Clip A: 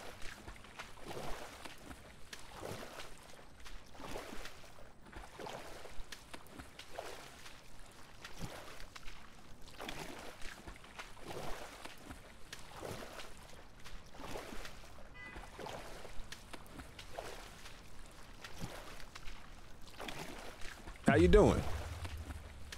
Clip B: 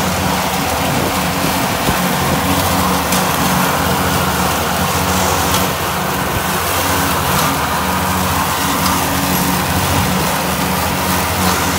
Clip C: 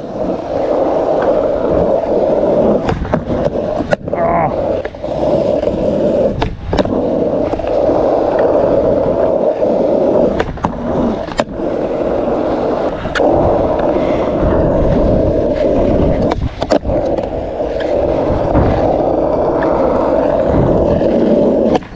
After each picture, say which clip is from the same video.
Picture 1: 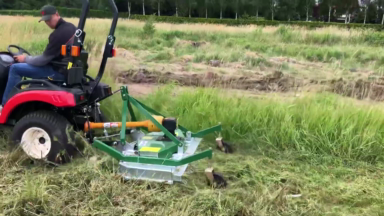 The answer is B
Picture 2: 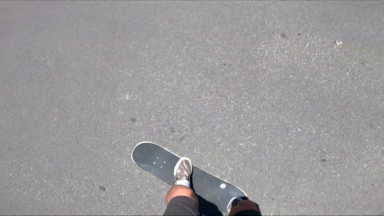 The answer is C